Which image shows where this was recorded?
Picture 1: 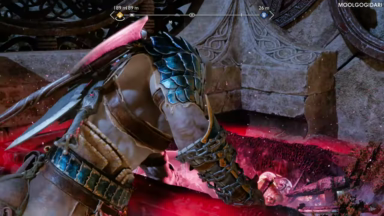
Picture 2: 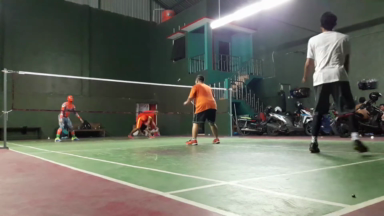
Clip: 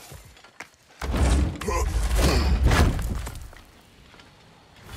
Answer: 1